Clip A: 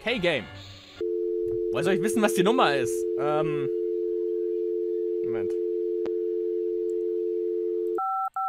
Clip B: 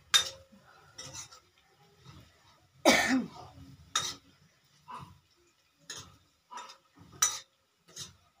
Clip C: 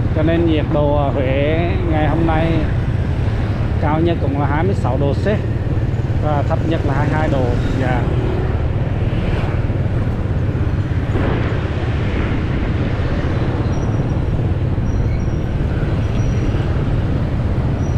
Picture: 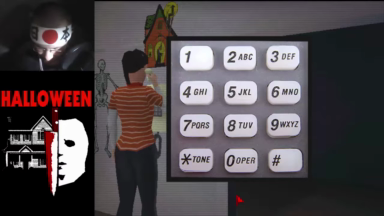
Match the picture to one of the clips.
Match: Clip A